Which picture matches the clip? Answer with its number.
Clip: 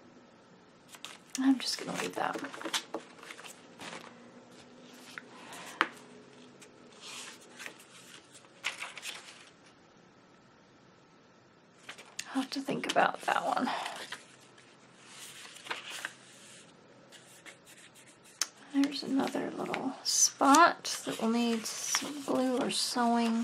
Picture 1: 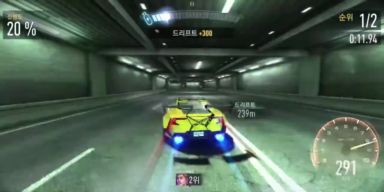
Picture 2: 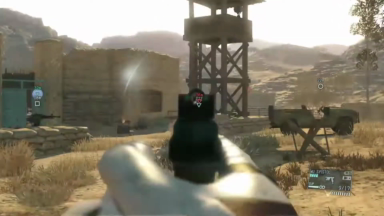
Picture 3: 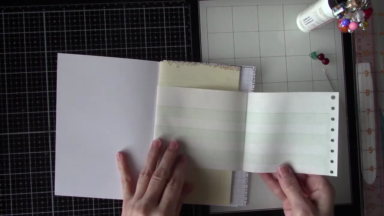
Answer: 3